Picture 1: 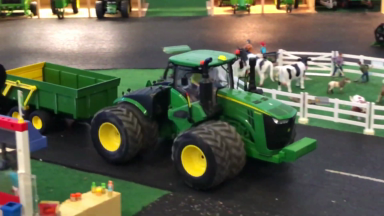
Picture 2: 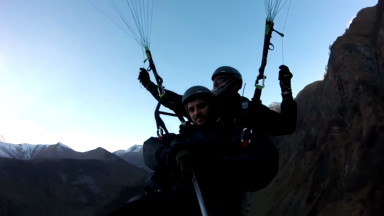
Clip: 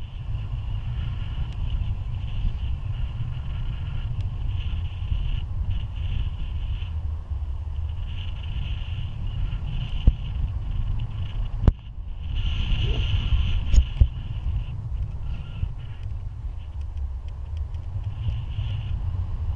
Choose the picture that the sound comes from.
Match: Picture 2